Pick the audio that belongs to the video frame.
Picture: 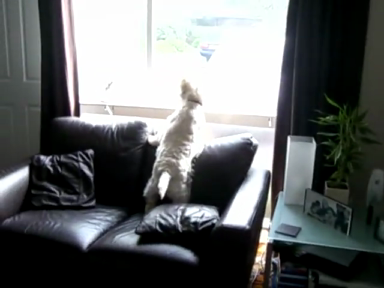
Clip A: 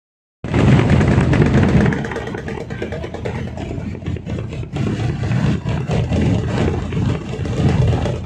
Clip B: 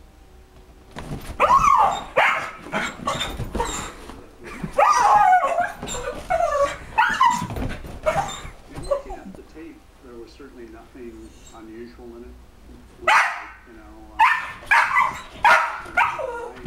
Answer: B